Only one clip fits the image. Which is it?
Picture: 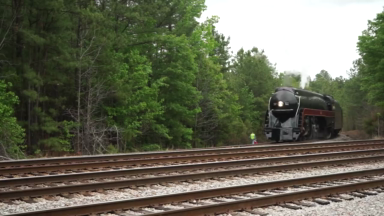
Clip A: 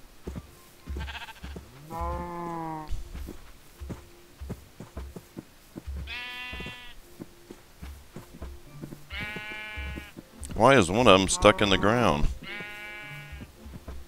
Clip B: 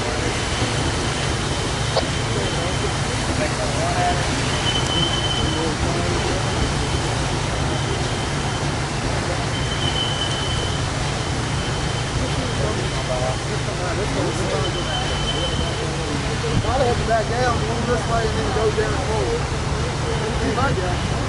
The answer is B